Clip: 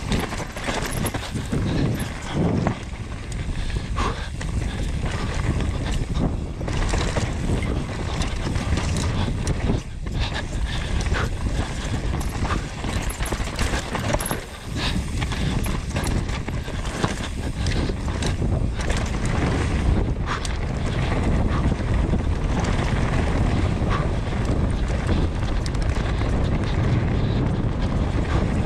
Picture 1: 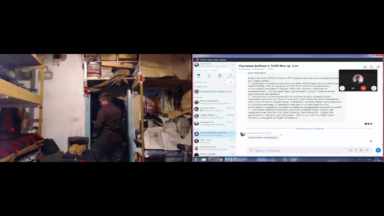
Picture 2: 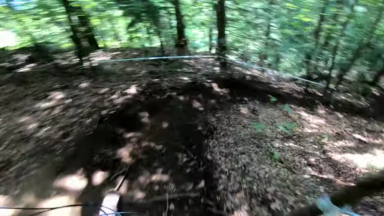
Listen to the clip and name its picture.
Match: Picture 2